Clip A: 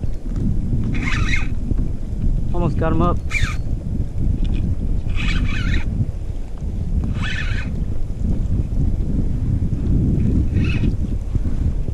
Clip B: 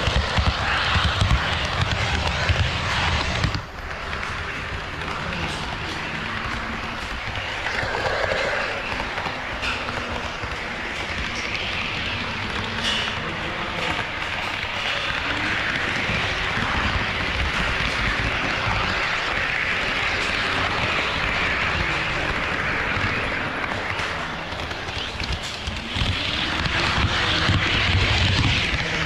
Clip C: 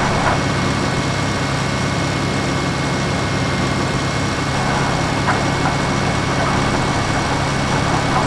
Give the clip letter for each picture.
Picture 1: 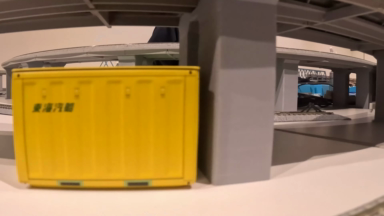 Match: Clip B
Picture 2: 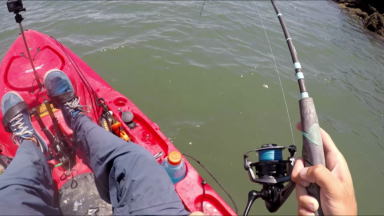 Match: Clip A